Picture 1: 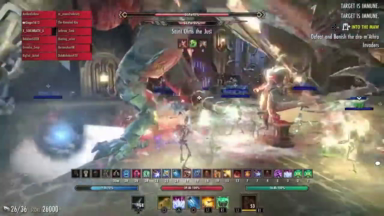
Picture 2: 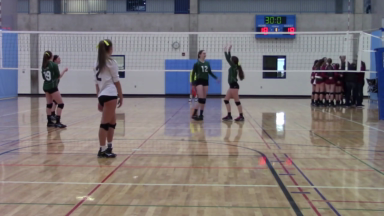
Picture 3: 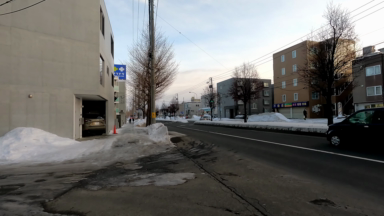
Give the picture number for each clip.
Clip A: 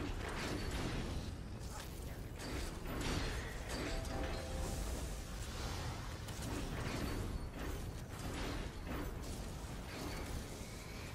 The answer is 1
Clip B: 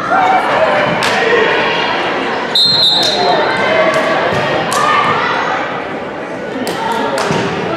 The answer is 2